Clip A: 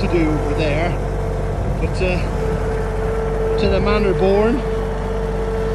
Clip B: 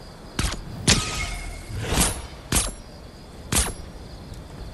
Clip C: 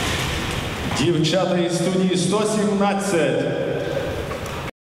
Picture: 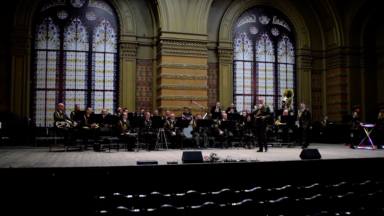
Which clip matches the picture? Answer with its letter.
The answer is C